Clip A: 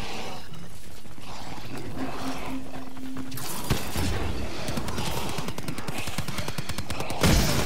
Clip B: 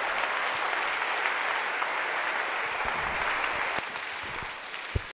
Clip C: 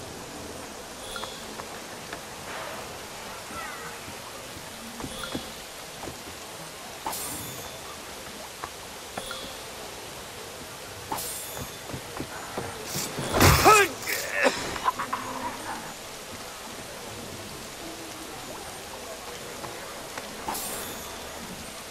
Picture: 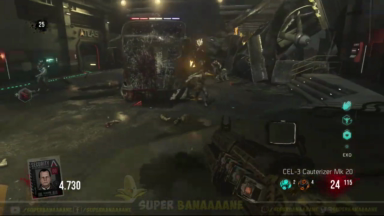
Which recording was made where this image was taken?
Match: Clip A